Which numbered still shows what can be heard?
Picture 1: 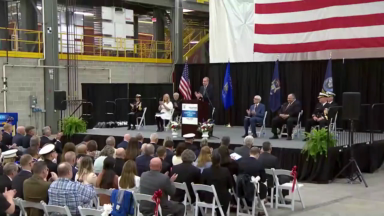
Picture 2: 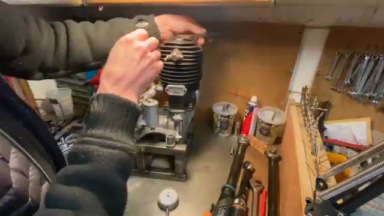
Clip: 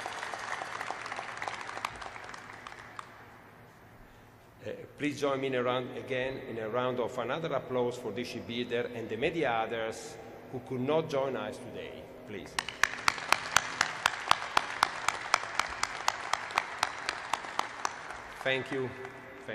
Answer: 1